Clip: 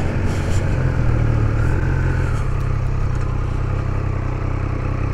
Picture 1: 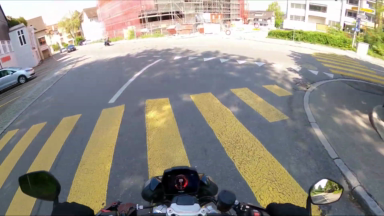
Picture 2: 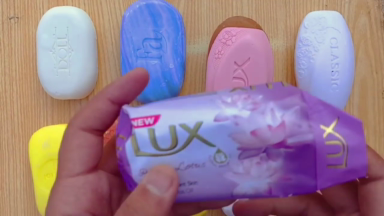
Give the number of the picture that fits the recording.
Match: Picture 1